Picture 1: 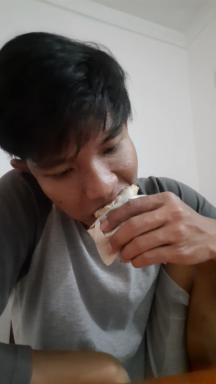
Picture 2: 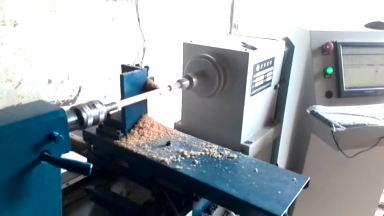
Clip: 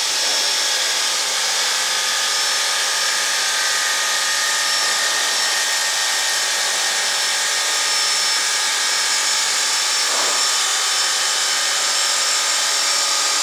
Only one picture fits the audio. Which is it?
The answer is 2